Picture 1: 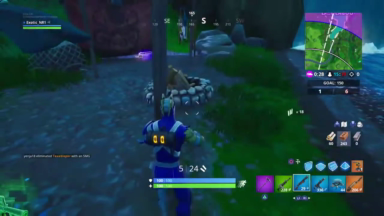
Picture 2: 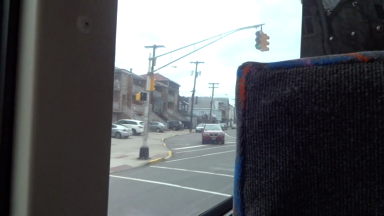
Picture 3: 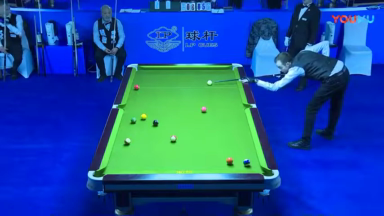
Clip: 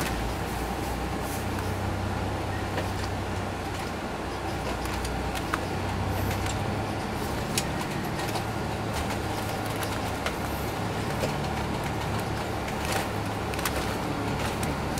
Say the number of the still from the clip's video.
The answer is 2